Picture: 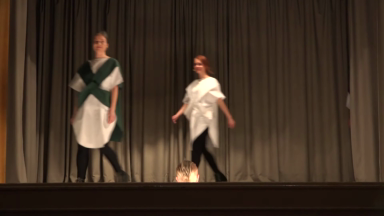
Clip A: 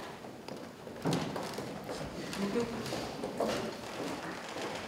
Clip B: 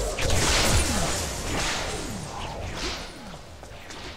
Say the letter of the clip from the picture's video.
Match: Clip A